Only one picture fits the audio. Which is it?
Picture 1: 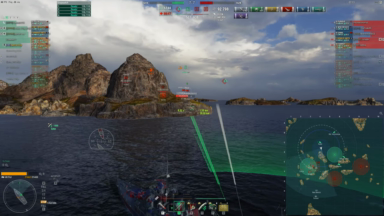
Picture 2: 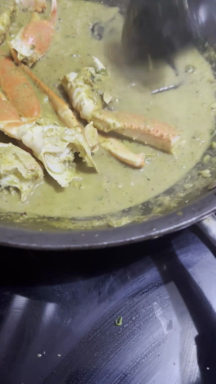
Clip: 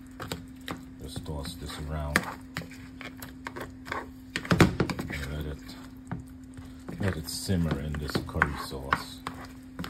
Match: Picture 2